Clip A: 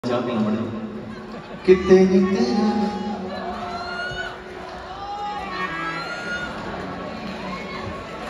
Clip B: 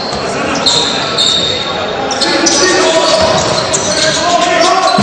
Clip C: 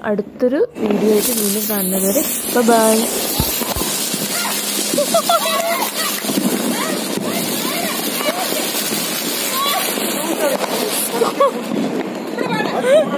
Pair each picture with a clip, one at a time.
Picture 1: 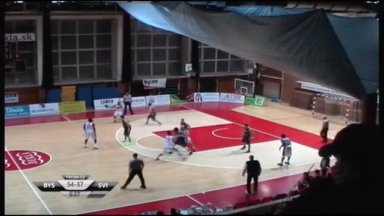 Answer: B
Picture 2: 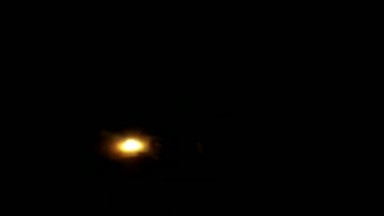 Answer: C